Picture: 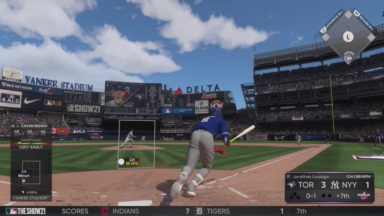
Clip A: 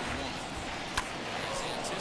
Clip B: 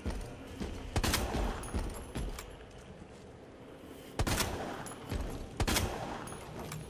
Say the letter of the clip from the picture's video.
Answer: A